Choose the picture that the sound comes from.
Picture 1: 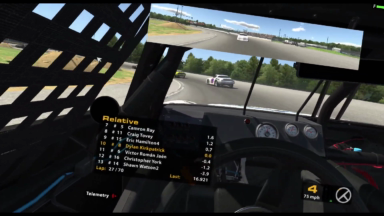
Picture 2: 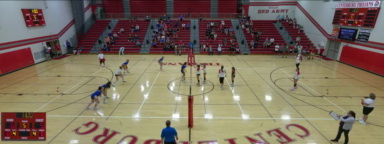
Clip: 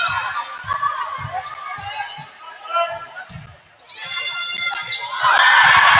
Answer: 2